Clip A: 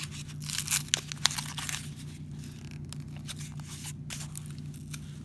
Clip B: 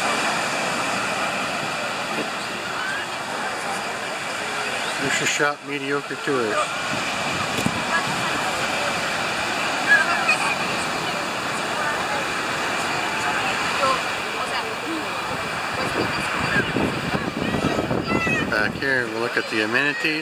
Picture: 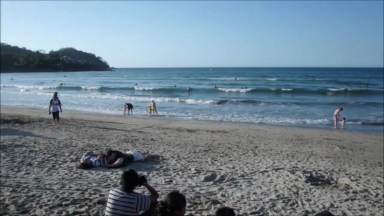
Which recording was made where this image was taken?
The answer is B